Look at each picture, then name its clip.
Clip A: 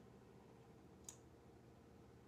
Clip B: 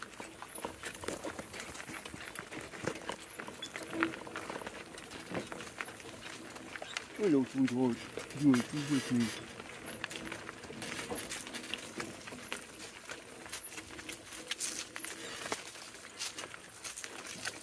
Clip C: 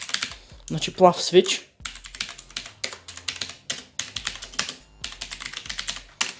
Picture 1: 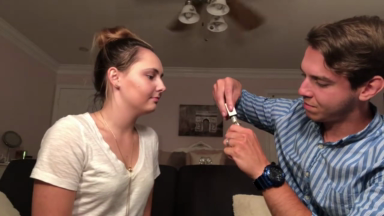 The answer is A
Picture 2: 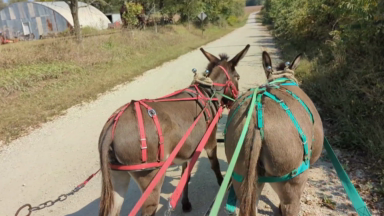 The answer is B